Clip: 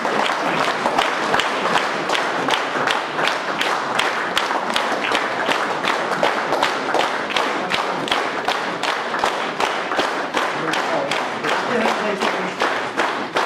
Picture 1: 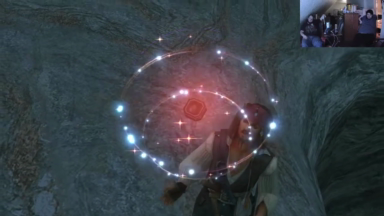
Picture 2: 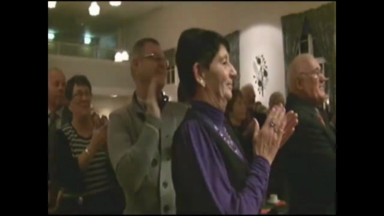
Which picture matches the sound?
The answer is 2